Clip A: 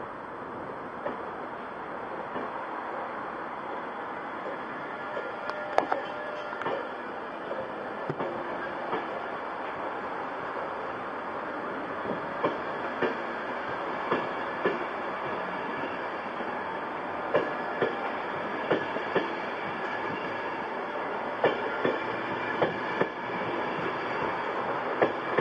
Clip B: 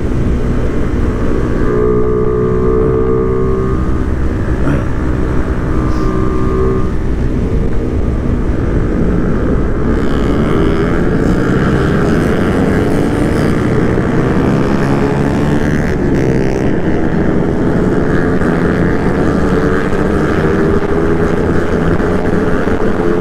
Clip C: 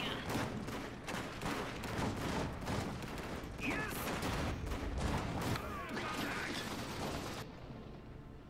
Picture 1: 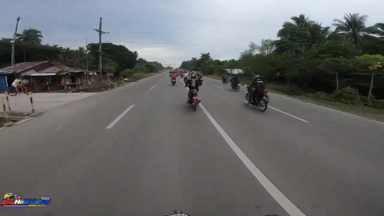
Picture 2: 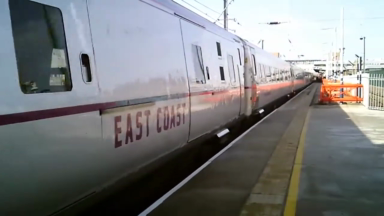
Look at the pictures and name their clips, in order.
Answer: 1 B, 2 A